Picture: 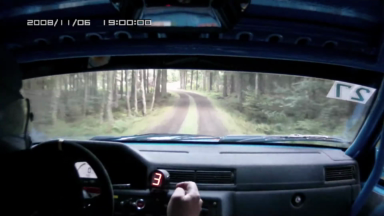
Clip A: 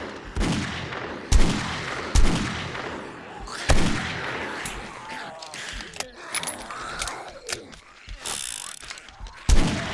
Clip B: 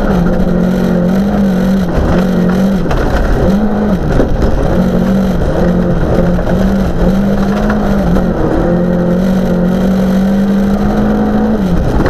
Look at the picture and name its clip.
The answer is B